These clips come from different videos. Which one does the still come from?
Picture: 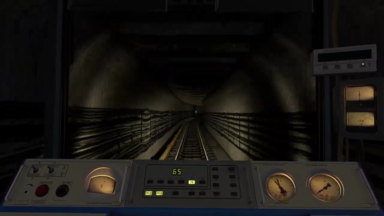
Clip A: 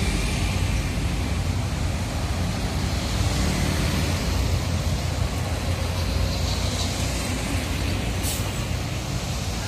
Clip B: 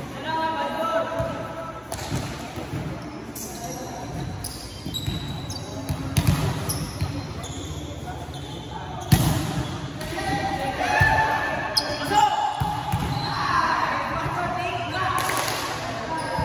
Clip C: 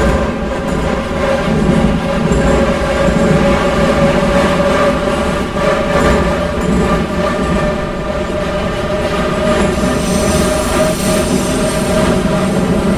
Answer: C